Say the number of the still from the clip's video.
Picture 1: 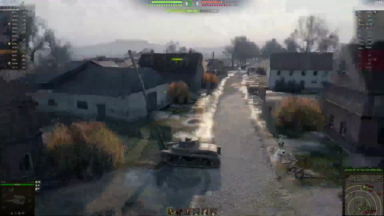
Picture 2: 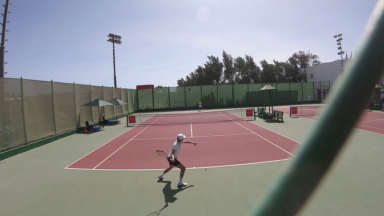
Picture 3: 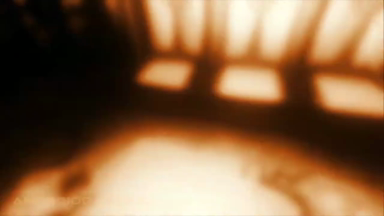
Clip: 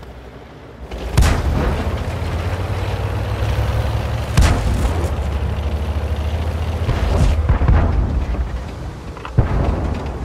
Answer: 1